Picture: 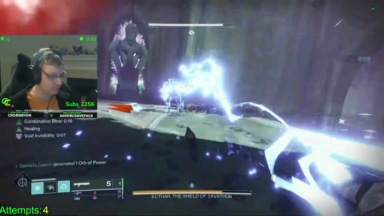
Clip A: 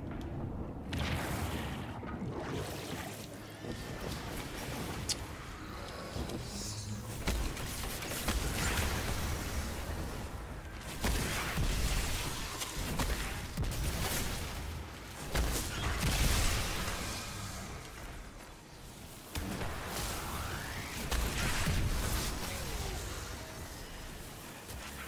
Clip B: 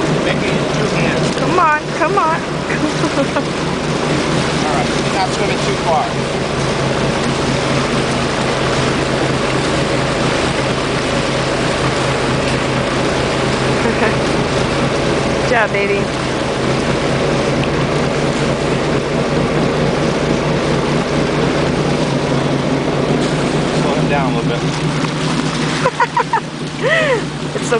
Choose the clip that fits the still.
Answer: A